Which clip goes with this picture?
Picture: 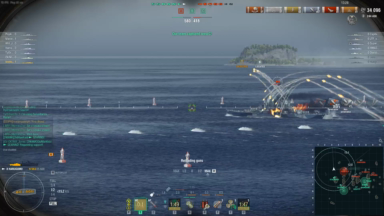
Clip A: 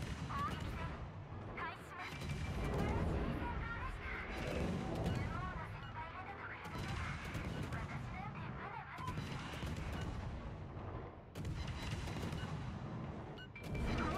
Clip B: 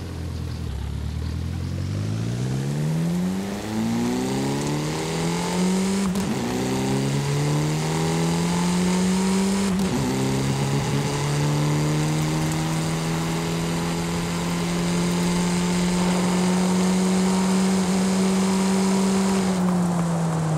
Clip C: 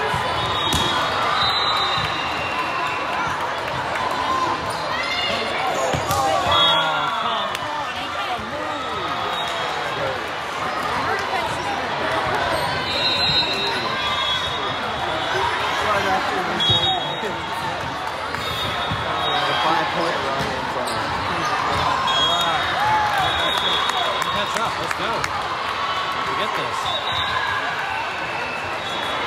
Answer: A